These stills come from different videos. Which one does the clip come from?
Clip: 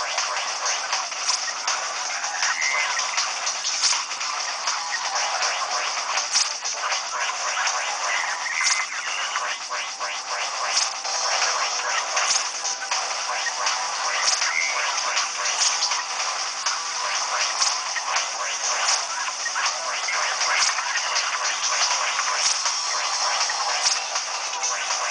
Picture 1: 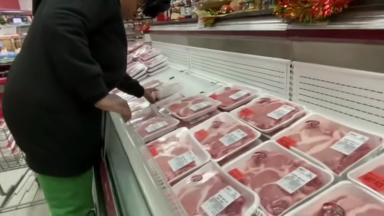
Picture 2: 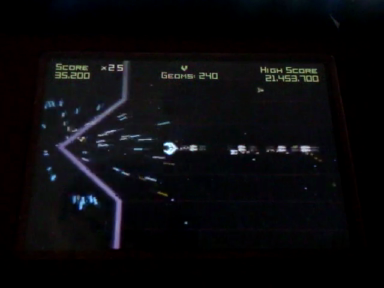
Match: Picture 2